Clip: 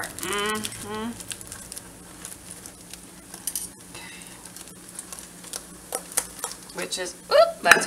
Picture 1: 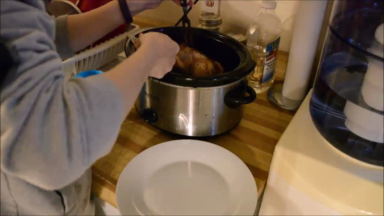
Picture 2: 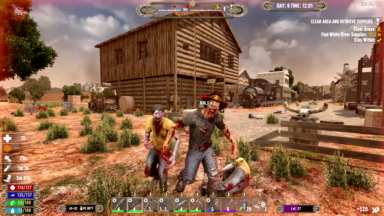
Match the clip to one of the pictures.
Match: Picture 1